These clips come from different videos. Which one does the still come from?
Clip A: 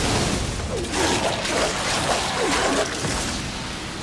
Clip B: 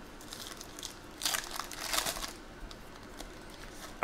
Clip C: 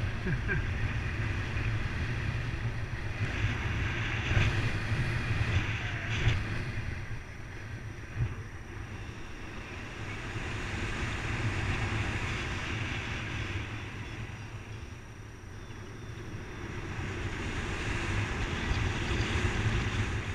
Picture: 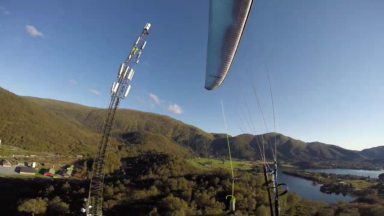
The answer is C